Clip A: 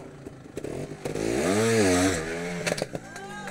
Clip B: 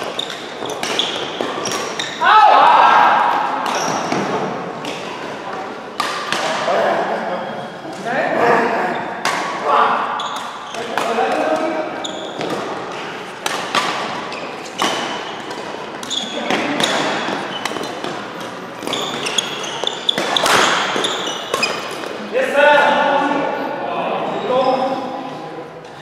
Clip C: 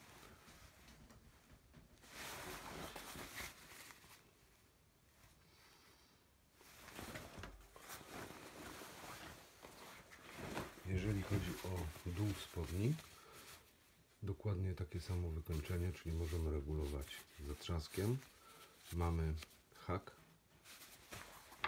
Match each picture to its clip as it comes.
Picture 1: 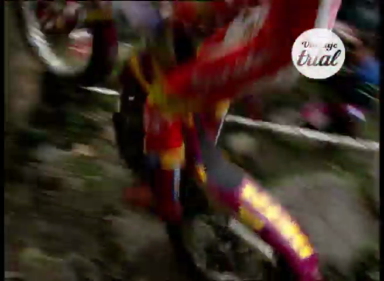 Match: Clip A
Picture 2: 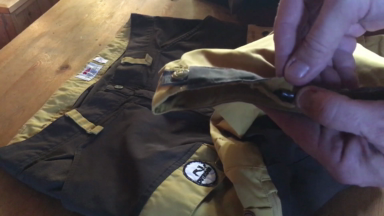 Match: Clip C